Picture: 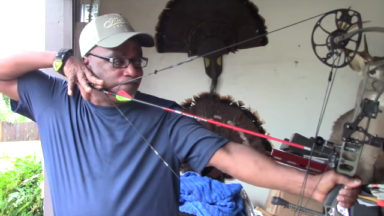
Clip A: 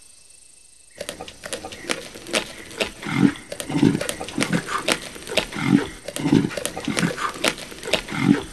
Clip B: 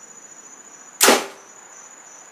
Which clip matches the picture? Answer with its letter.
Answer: B